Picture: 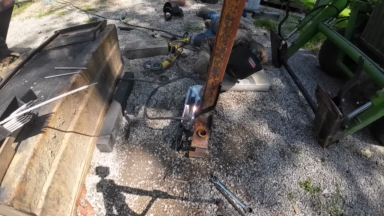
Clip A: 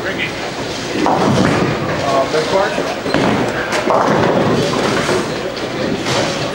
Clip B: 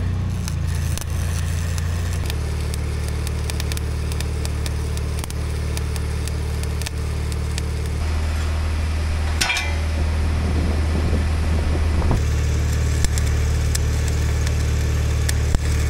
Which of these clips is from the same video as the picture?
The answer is B